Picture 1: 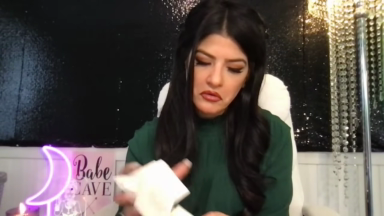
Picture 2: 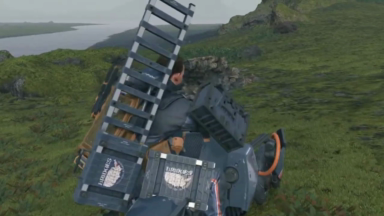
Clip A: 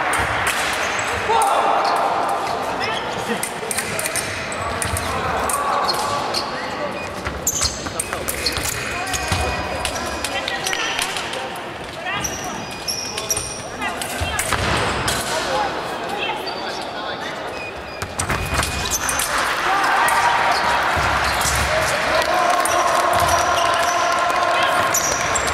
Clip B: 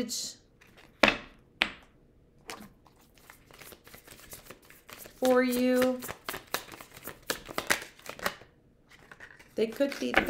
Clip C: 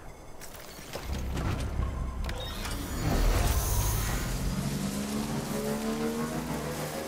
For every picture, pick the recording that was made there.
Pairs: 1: B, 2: C